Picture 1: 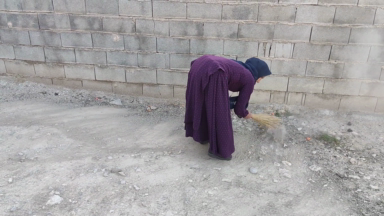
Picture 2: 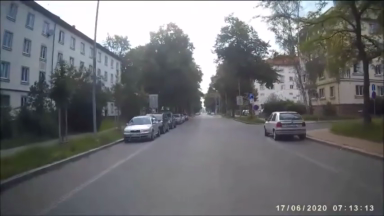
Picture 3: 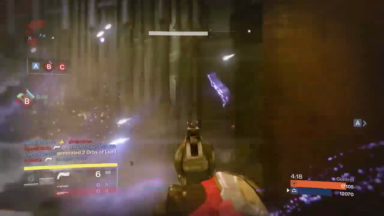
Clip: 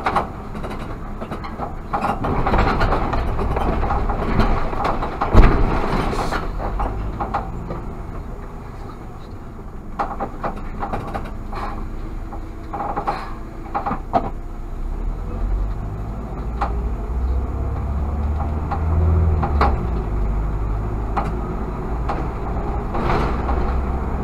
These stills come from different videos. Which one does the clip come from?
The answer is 2